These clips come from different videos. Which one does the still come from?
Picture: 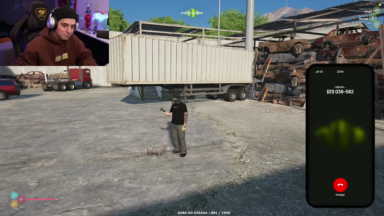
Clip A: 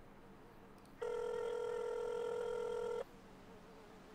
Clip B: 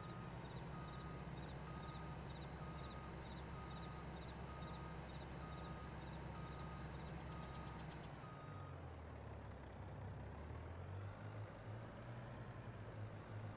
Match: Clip A